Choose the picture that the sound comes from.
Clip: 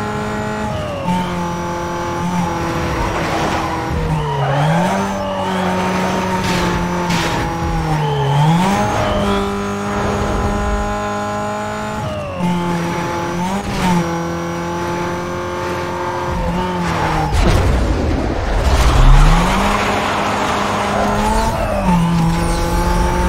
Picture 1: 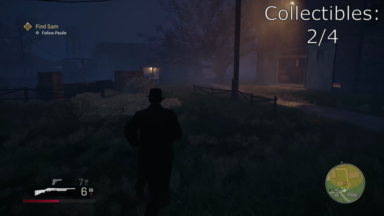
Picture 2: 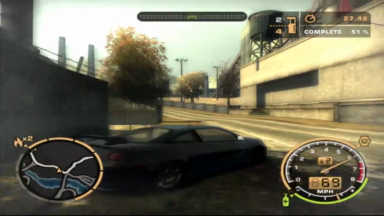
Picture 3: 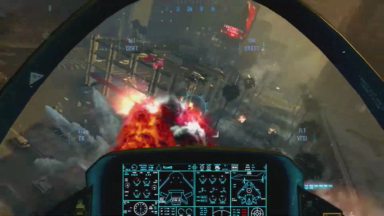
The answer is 2